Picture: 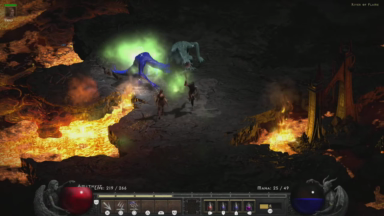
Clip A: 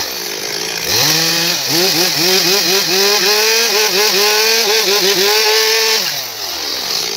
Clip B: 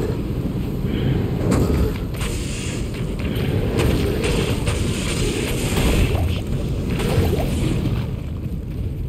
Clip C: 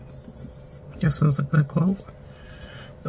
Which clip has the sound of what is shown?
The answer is B